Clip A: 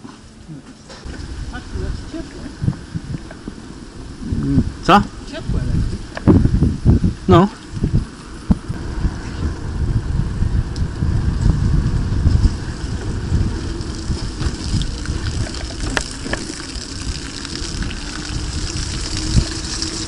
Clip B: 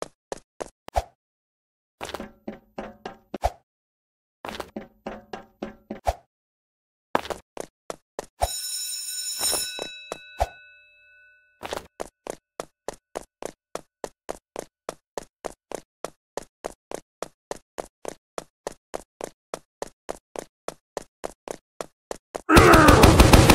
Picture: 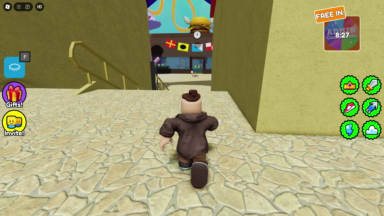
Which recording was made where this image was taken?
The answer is B